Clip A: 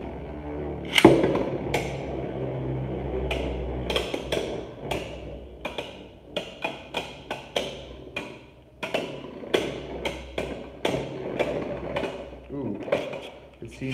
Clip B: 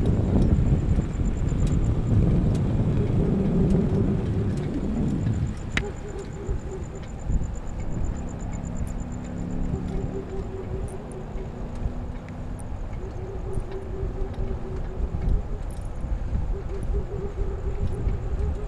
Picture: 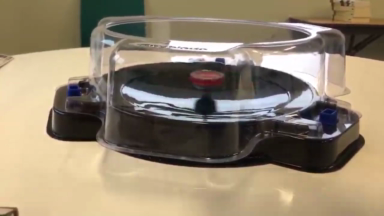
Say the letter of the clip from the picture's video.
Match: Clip A